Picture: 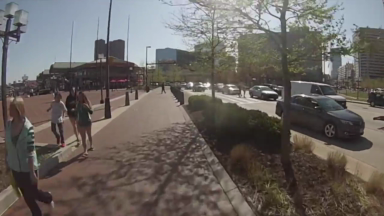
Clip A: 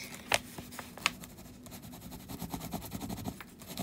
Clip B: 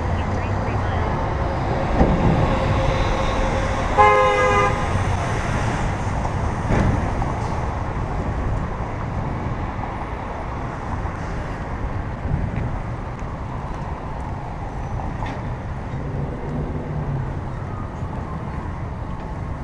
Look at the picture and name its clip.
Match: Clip B